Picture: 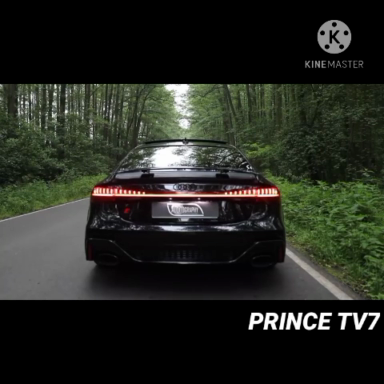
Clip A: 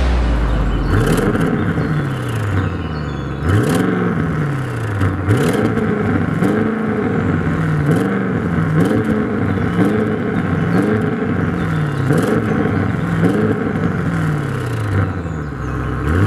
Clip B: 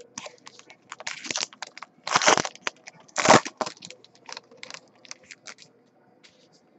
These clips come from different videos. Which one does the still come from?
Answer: A